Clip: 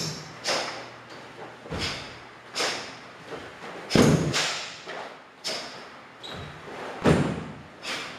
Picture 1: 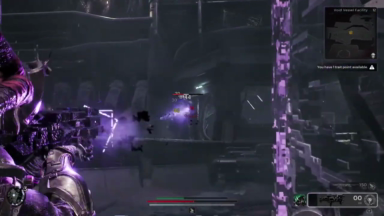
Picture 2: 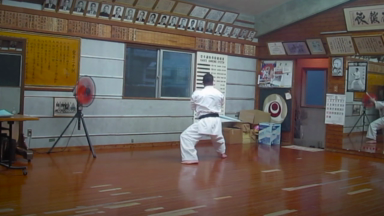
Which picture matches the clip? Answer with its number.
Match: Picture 2